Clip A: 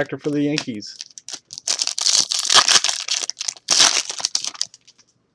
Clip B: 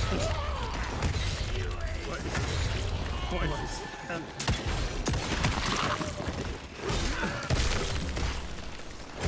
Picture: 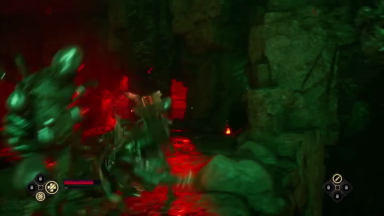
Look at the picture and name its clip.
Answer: B